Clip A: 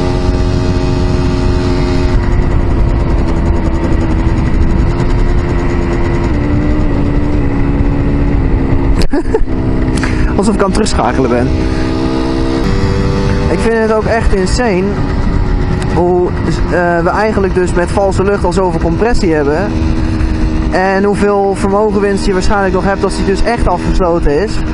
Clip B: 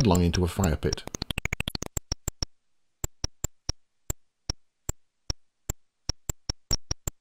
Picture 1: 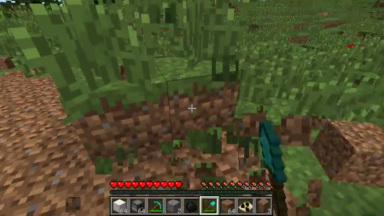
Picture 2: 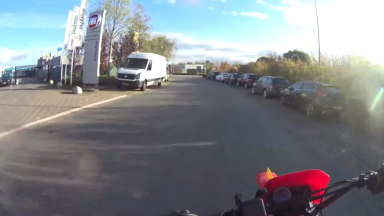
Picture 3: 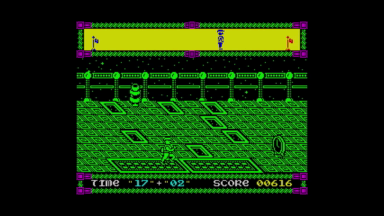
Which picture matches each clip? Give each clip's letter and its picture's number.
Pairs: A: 2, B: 3